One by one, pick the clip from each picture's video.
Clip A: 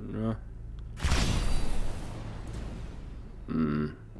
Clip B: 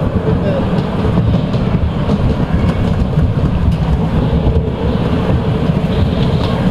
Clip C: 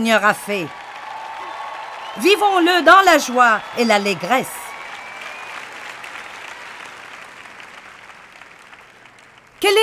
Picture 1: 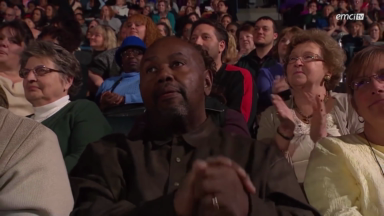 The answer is C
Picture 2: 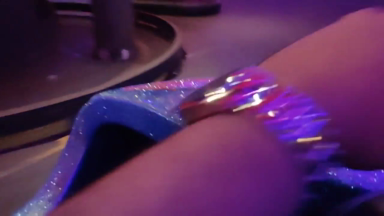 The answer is B